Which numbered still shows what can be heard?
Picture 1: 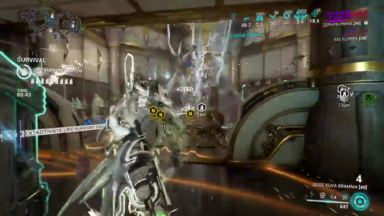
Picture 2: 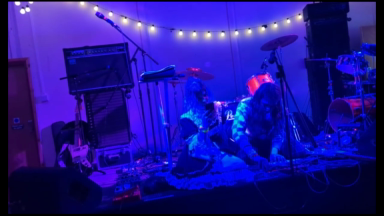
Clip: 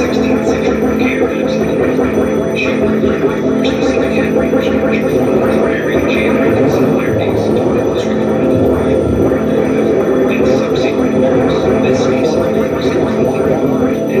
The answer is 2